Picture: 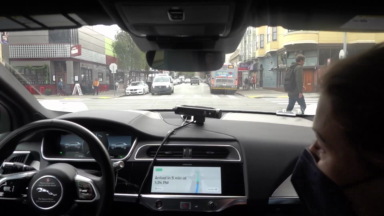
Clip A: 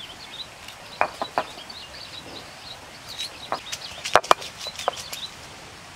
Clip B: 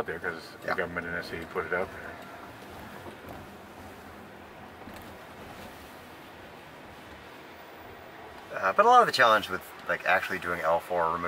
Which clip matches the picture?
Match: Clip B